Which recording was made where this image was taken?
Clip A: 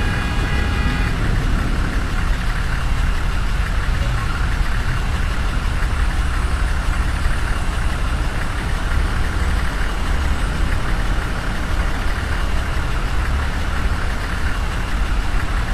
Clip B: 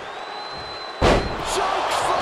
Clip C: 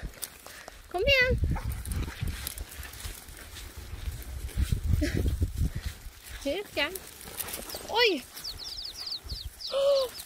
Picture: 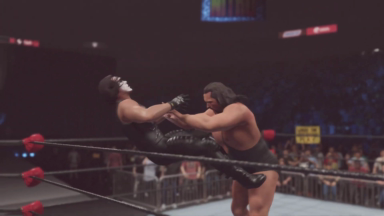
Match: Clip B